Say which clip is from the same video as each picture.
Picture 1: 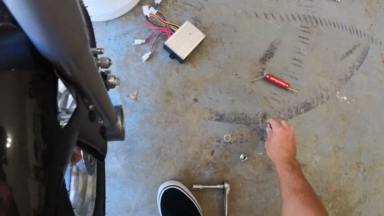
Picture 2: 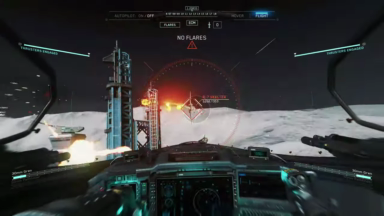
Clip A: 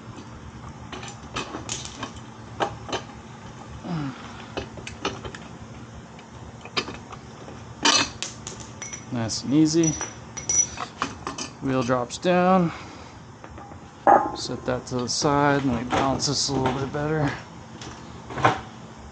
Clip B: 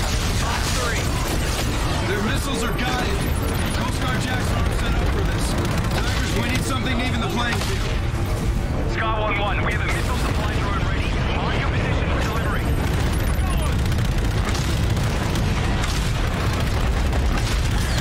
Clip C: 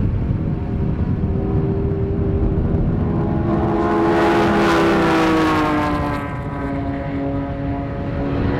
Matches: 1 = A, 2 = B